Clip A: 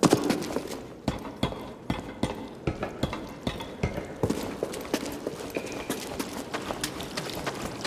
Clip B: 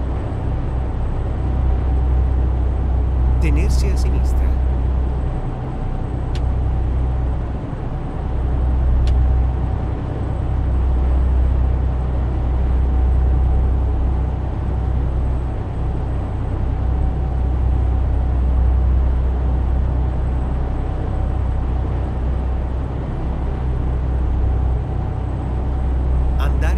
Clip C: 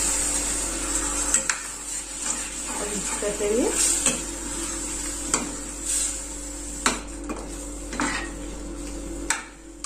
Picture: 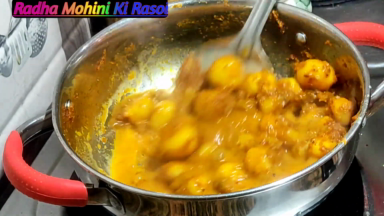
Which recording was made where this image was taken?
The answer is C